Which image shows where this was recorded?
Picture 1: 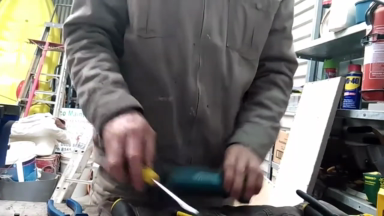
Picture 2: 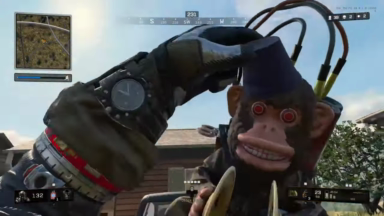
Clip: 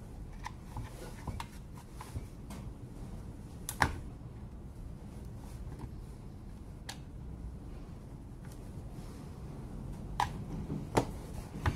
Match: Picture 1